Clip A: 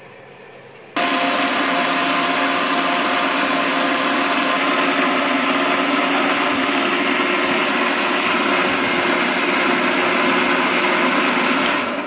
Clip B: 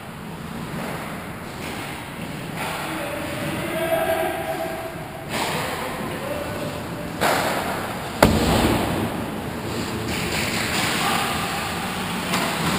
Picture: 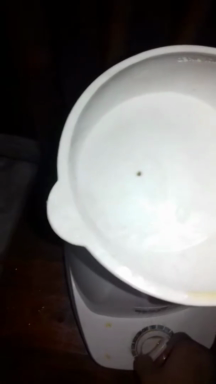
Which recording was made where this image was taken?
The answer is A